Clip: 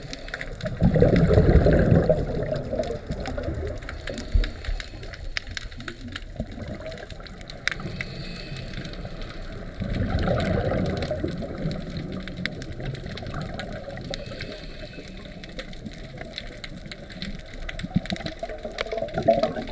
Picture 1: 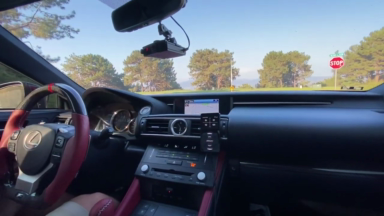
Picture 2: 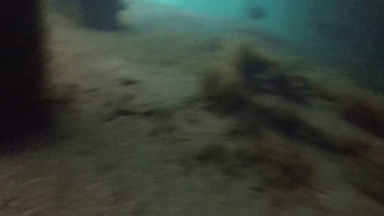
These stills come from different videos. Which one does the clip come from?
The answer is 2